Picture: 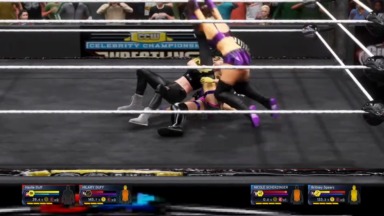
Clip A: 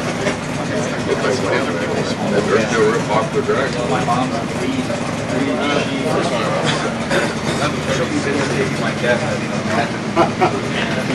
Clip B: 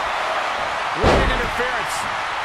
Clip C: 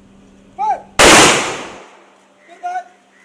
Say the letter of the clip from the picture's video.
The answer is B